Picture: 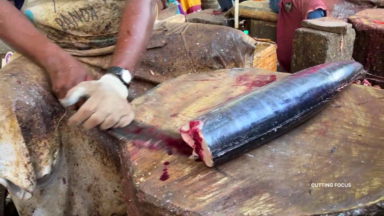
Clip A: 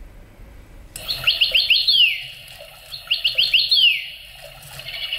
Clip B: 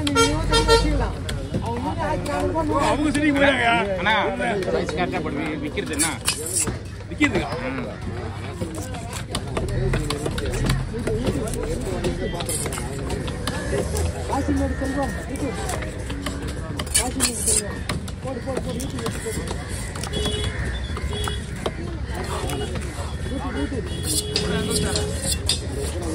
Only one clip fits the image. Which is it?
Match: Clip B